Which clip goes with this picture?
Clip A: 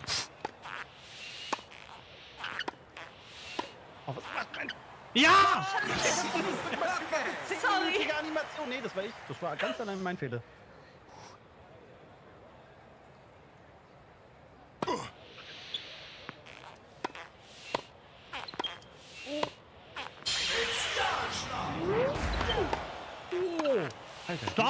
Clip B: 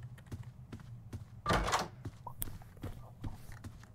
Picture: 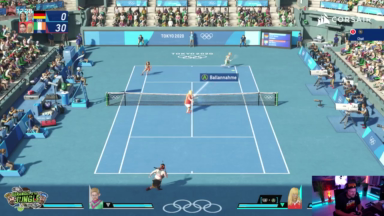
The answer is A